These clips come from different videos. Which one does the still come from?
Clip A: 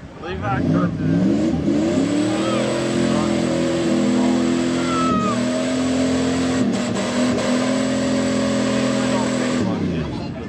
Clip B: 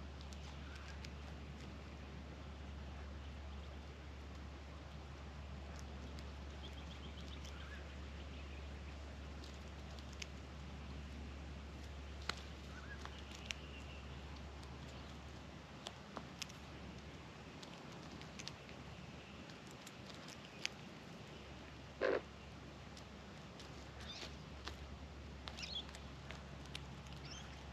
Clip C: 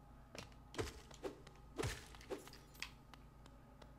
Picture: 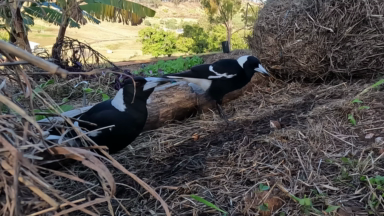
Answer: B